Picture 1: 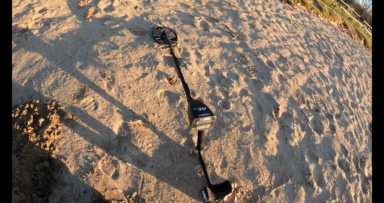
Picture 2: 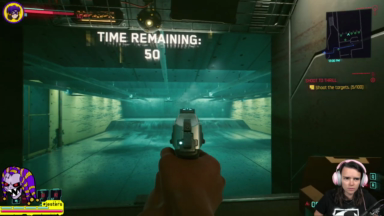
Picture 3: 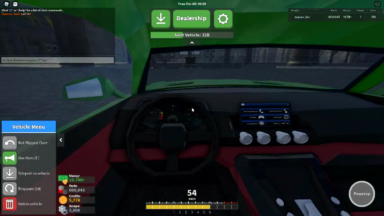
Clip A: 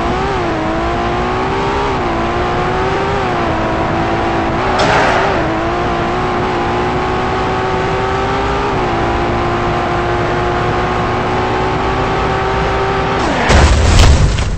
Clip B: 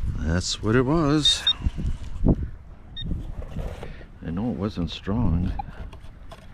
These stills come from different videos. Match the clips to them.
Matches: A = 3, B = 1